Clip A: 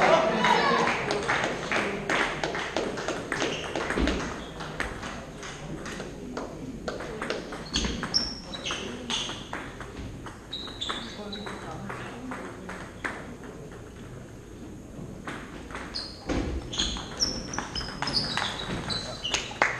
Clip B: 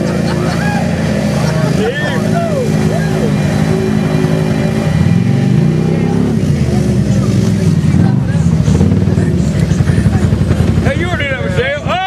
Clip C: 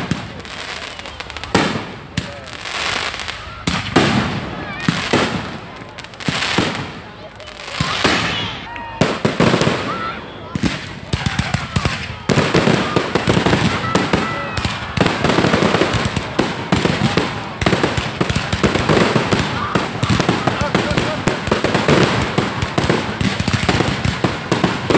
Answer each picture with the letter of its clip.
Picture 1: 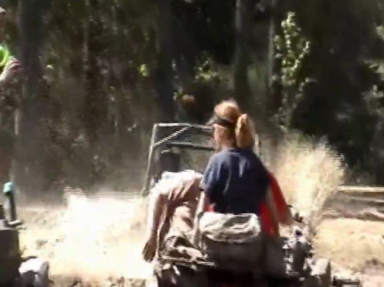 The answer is B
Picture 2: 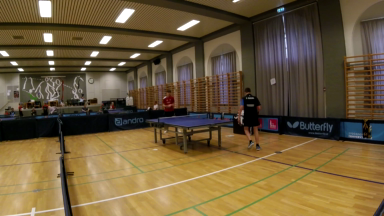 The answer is A